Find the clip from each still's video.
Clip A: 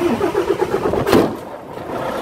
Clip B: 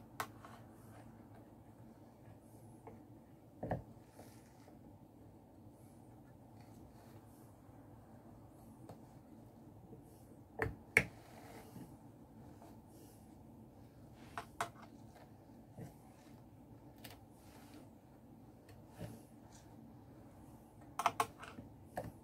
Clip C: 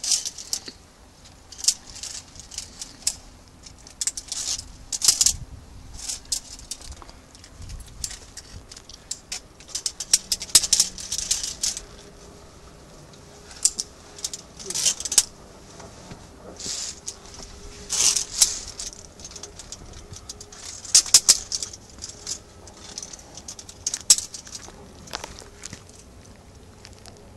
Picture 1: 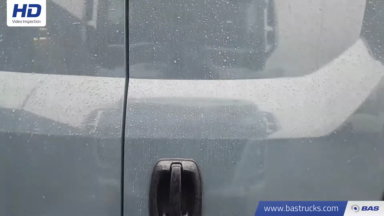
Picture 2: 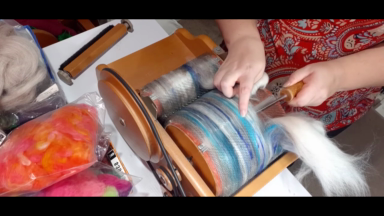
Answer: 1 A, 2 B